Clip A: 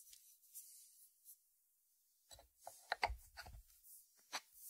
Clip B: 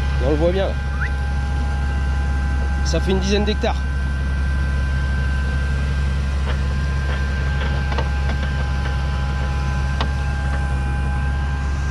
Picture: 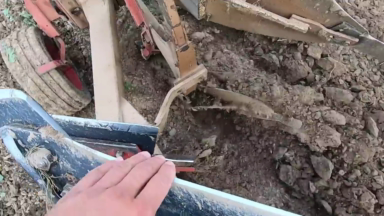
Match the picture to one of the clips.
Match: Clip B